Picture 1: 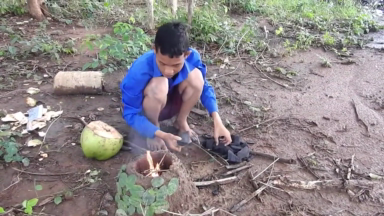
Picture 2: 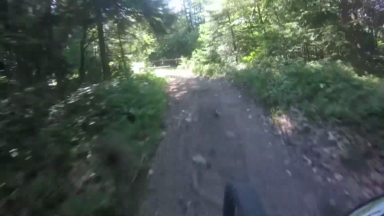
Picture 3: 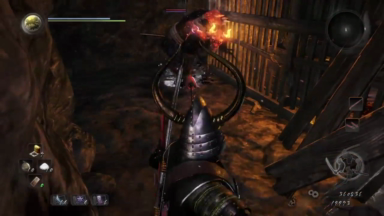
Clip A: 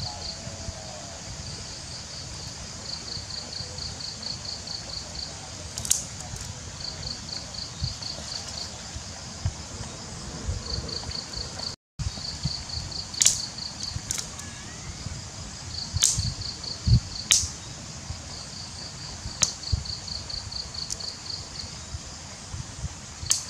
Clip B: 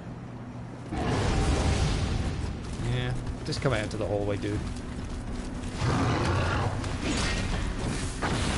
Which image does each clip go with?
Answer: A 1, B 3